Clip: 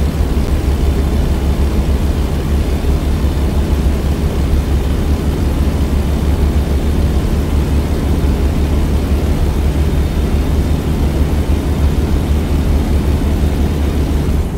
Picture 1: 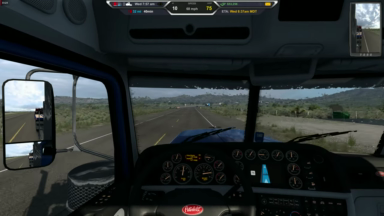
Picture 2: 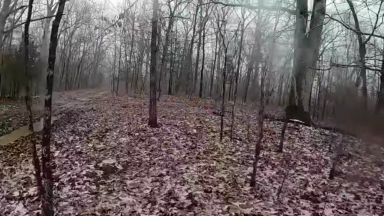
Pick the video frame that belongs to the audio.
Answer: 1